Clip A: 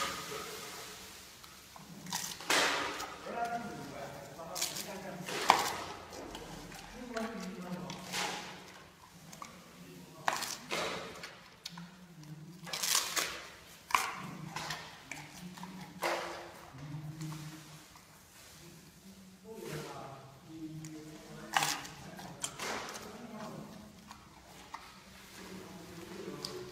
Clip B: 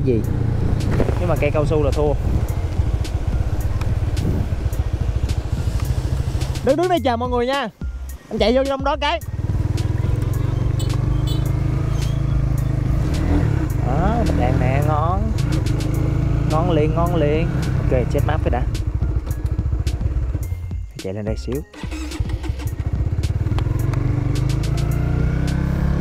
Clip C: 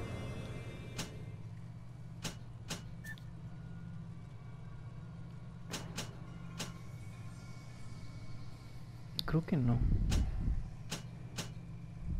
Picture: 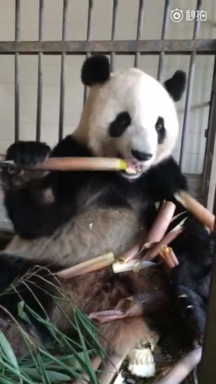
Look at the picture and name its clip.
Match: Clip A